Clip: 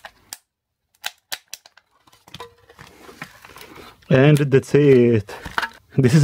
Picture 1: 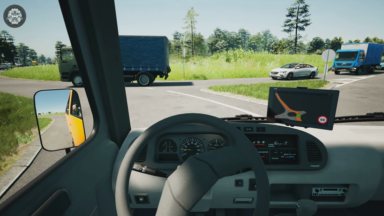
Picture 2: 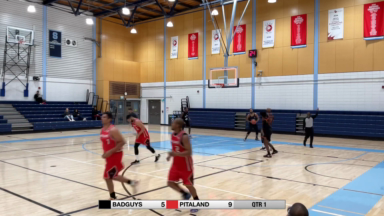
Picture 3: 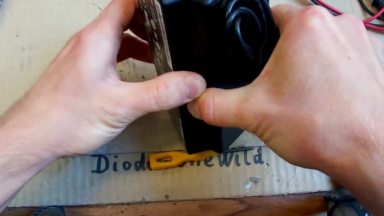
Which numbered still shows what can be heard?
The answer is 3